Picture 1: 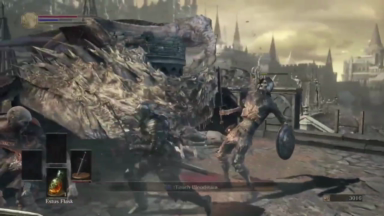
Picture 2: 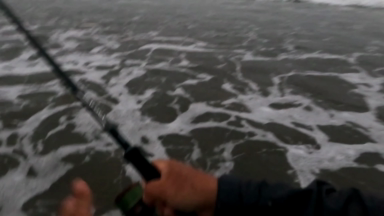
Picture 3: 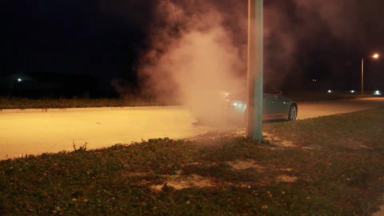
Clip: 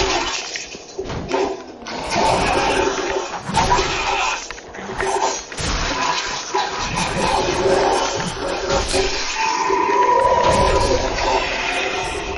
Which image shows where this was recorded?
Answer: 1